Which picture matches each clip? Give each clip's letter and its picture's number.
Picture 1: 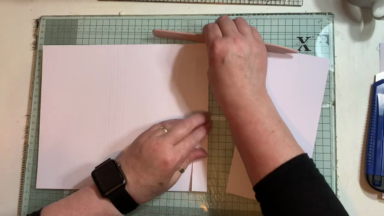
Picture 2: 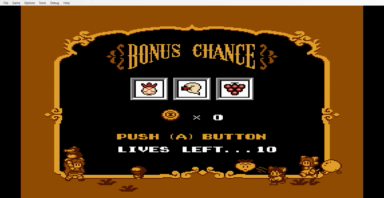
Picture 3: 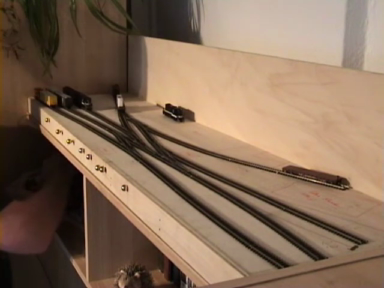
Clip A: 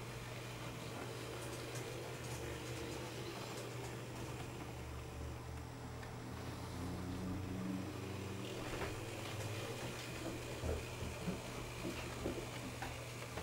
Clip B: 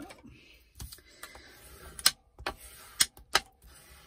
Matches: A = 3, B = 1